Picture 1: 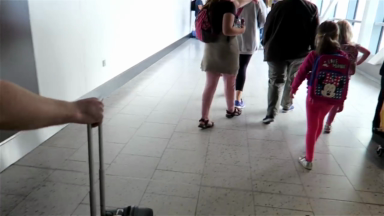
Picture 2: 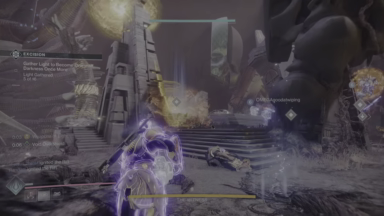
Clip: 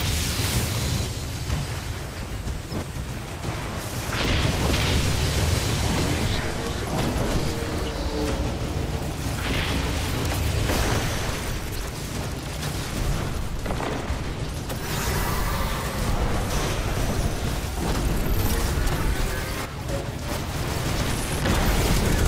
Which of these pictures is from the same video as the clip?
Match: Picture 2